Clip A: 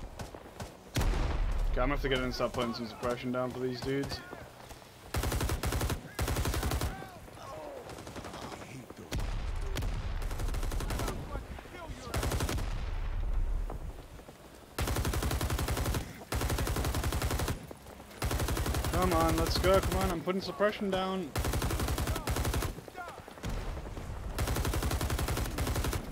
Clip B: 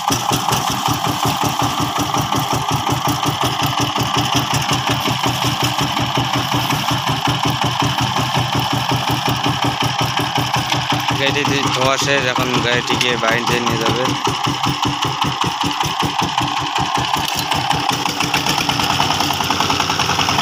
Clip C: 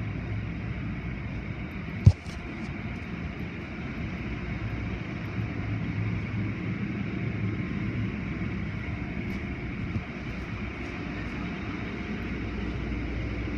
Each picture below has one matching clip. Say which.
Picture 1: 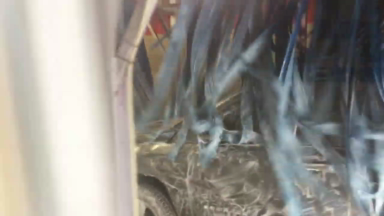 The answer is C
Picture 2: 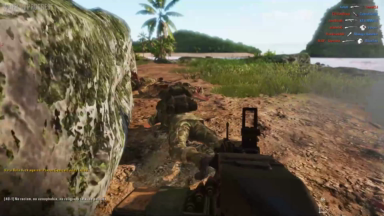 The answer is A